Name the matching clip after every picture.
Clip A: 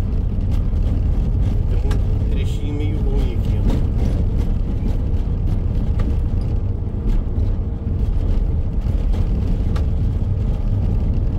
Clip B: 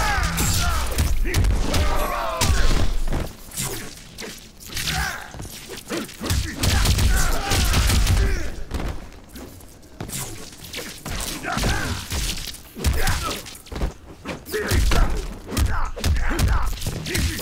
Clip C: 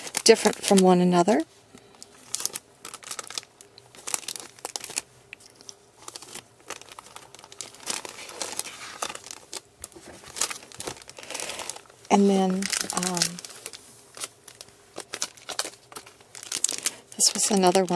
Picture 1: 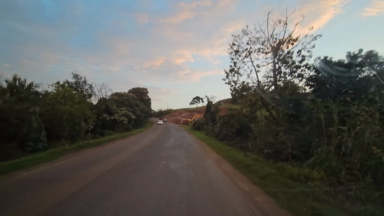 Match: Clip A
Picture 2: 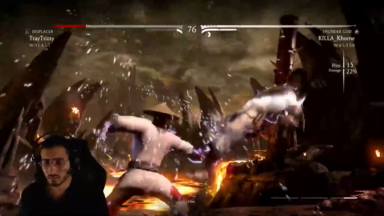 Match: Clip B